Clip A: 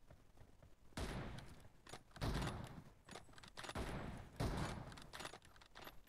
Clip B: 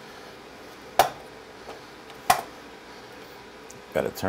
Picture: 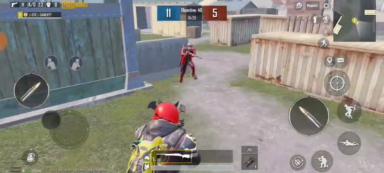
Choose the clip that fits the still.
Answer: A